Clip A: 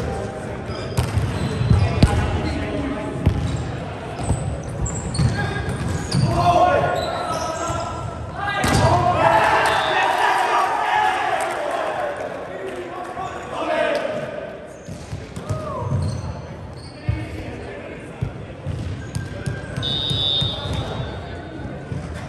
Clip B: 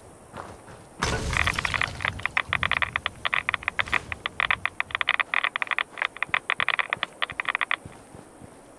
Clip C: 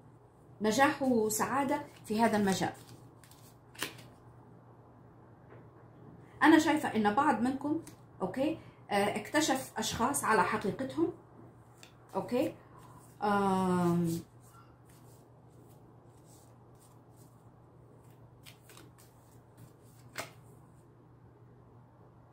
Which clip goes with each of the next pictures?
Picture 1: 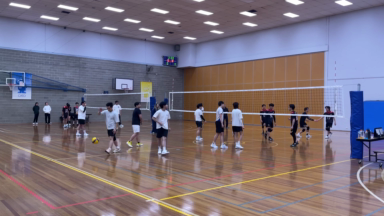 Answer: A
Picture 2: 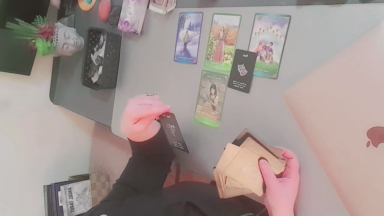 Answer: C